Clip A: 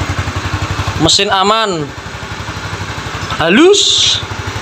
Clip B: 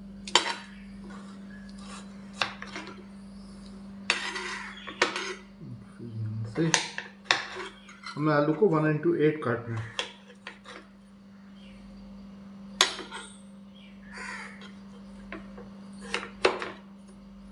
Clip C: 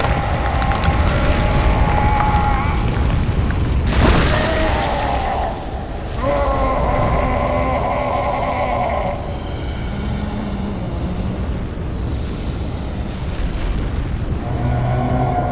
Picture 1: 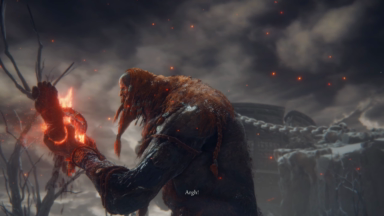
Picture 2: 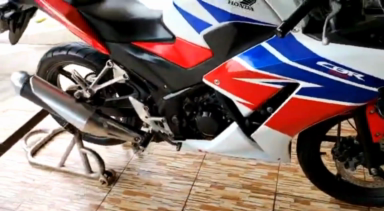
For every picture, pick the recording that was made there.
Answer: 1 C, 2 A